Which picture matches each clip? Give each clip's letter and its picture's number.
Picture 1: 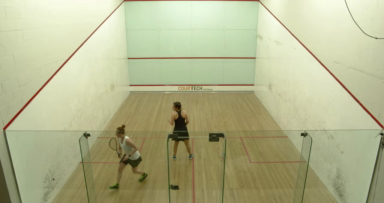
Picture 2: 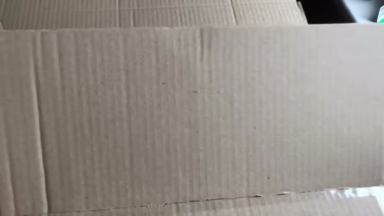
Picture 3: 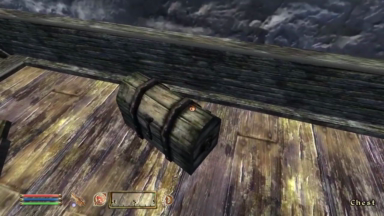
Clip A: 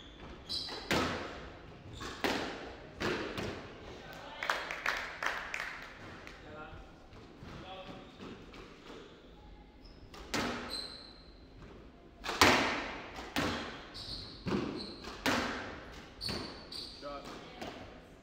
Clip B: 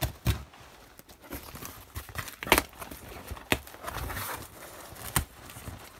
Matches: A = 1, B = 2